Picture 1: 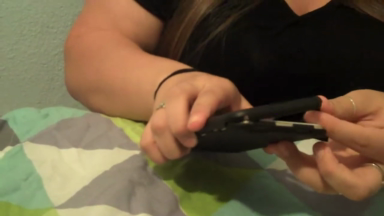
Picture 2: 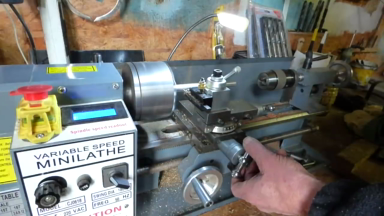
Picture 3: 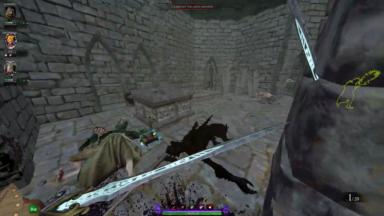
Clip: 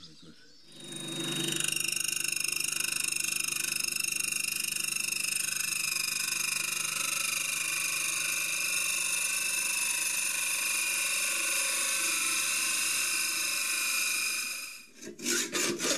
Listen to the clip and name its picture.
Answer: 2